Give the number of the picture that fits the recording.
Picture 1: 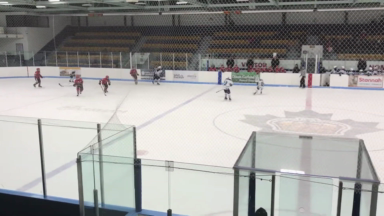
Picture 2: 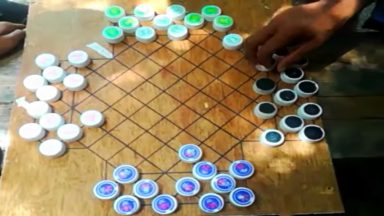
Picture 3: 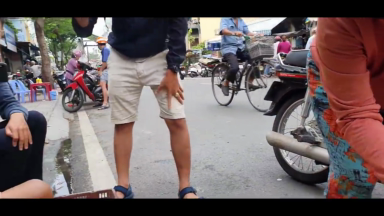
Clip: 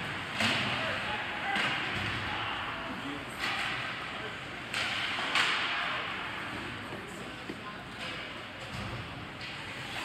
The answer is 1